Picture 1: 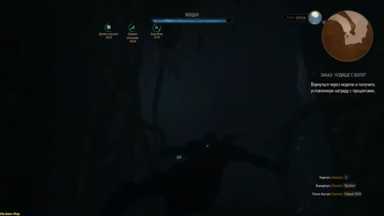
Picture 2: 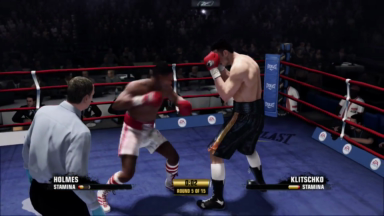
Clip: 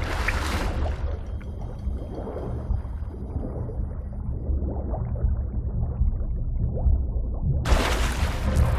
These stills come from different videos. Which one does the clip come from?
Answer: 1